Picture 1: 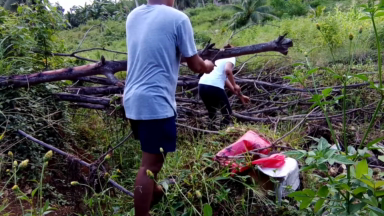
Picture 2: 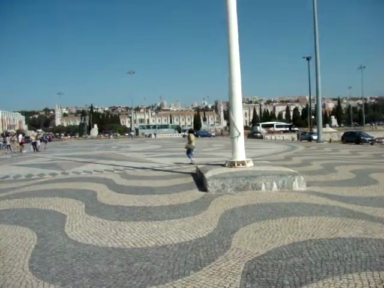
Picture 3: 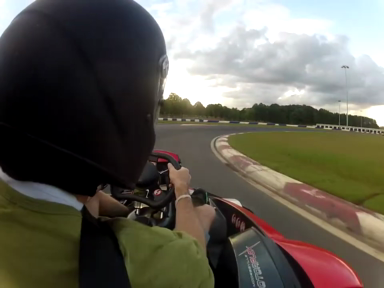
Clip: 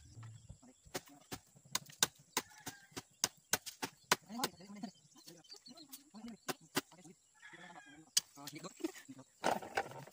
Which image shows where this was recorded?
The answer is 1